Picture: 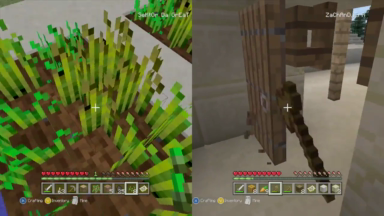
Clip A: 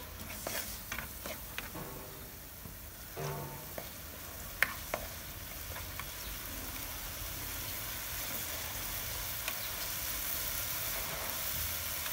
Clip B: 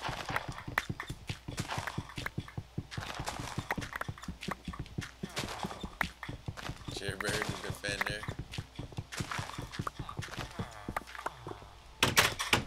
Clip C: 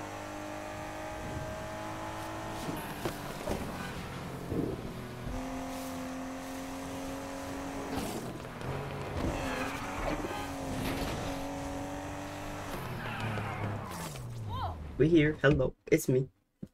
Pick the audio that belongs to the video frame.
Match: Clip B